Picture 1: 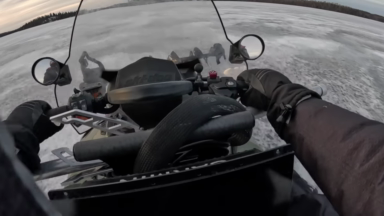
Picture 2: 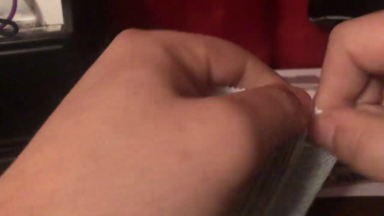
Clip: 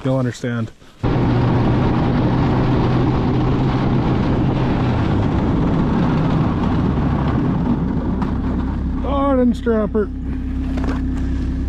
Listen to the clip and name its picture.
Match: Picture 1